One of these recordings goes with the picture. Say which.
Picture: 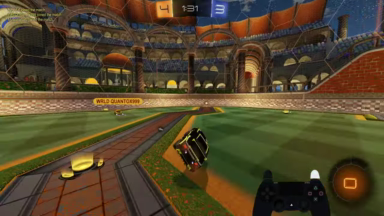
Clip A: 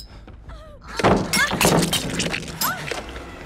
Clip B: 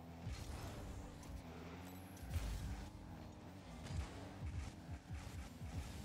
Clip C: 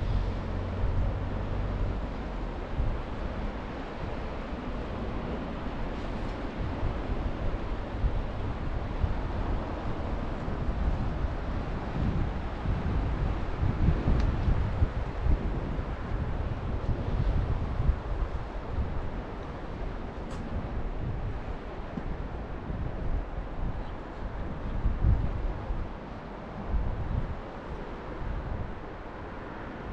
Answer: B